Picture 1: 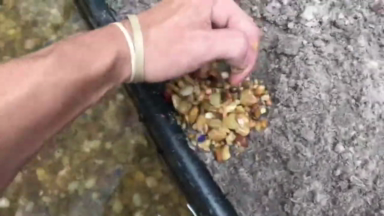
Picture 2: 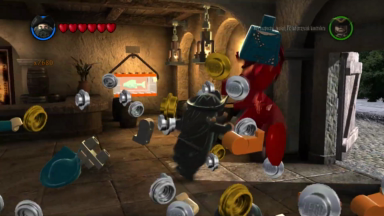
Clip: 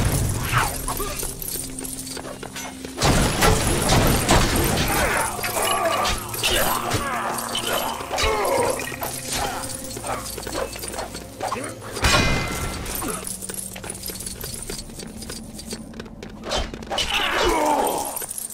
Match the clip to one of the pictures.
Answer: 2